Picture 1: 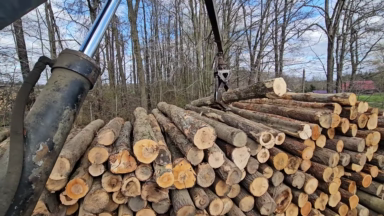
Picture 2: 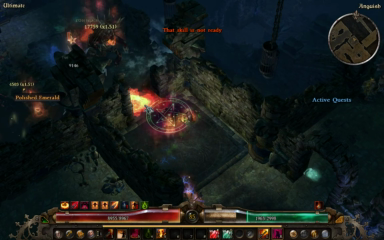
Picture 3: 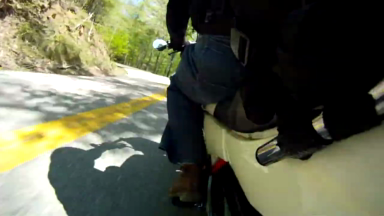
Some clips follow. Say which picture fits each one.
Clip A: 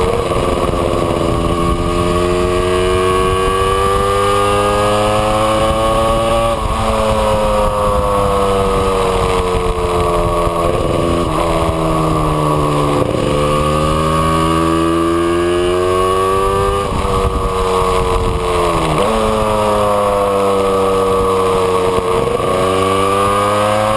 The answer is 3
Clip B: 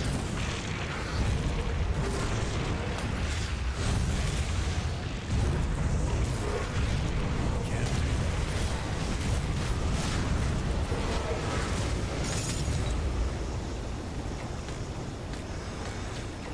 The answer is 2